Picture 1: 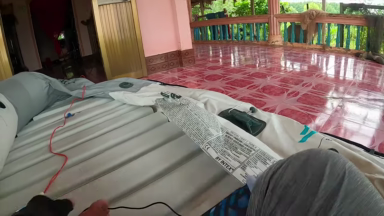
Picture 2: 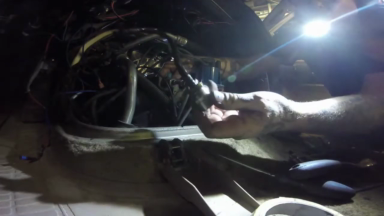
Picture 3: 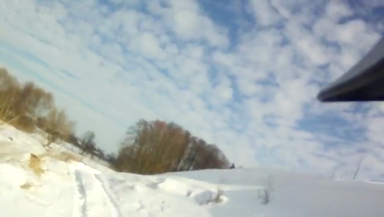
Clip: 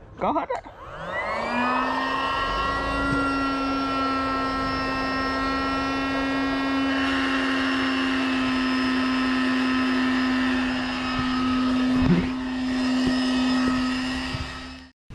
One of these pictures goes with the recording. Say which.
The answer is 1